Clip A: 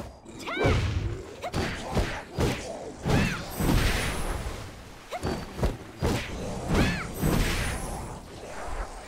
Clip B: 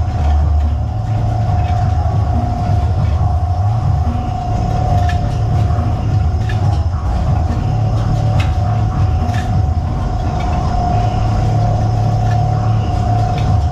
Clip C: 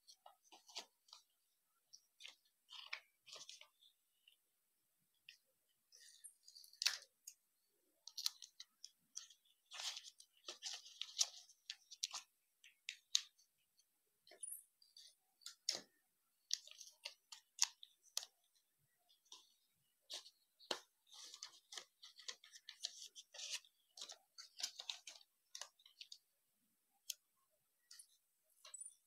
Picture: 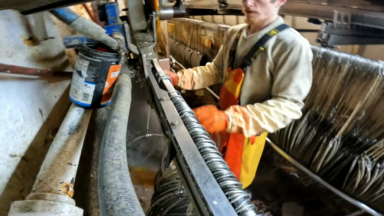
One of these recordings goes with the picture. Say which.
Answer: B